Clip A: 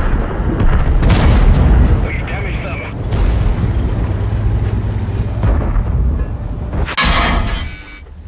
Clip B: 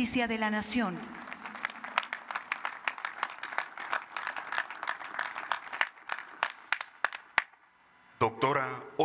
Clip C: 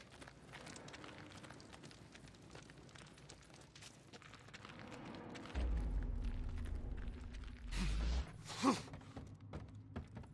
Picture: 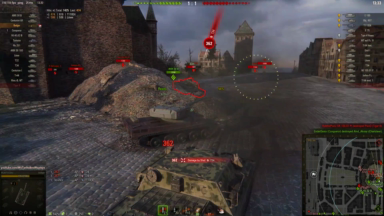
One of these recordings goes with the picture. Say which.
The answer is A